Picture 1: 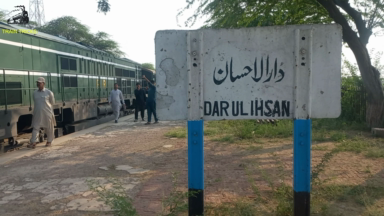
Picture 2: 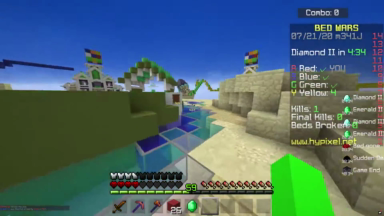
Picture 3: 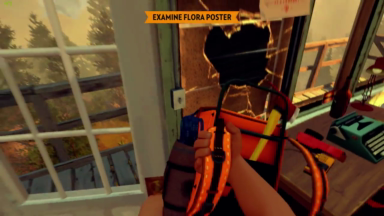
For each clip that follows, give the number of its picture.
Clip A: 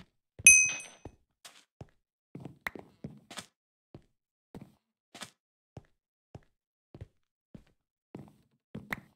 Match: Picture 2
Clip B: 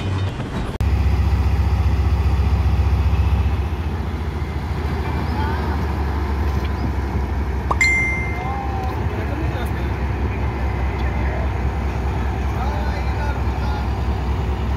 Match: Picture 1